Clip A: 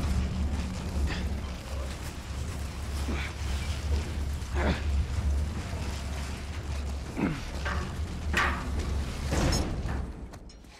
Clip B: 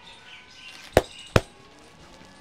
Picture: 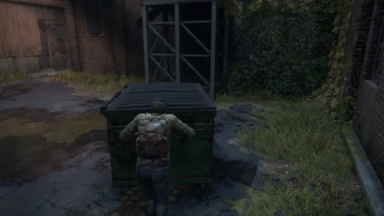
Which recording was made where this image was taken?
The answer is A